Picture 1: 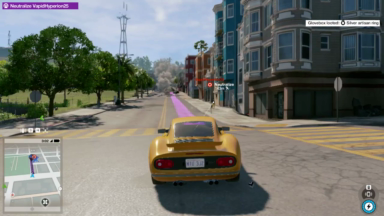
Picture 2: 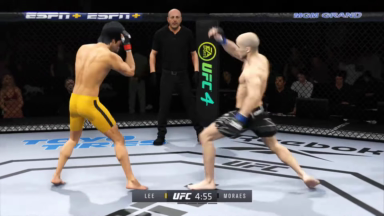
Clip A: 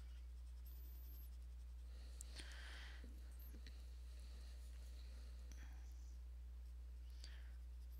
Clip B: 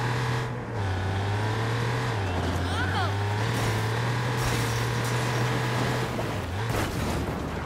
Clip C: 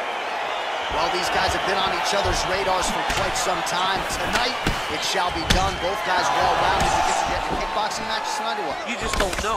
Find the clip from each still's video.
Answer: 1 B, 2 C